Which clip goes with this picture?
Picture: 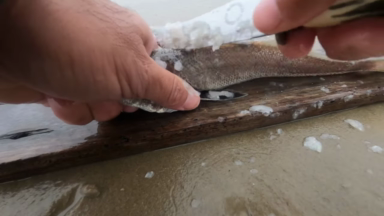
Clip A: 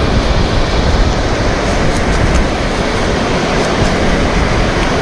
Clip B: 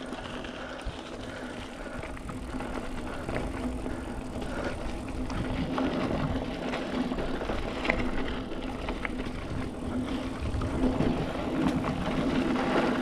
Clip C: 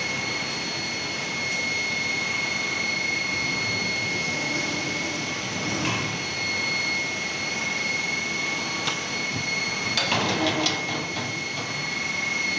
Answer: A